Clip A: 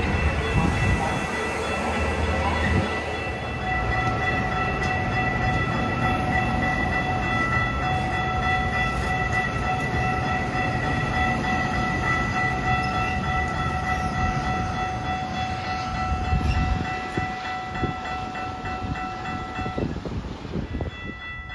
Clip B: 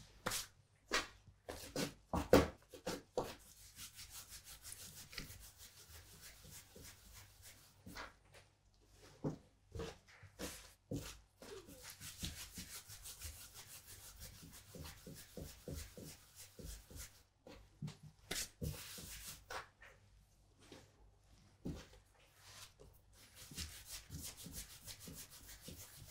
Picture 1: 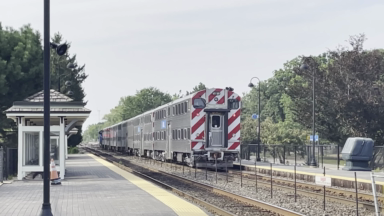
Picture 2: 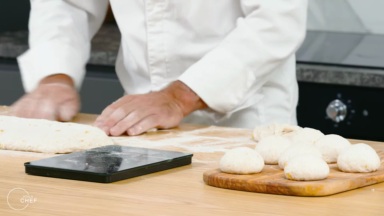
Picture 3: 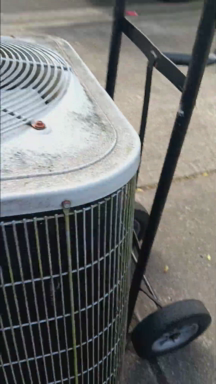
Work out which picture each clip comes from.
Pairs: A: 1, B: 2